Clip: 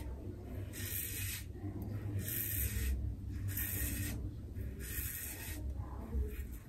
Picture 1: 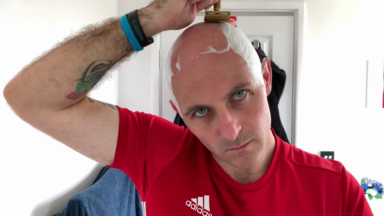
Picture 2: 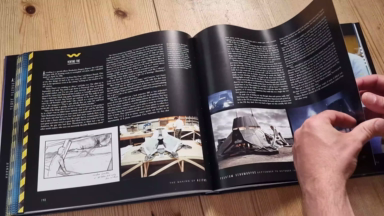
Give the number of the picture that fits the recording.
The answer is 1